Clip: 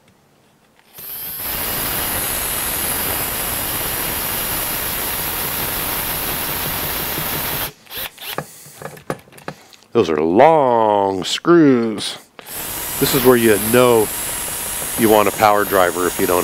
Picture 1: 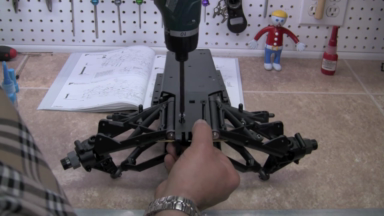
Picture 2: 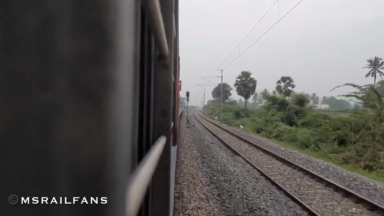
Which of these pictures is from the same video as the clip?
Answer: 1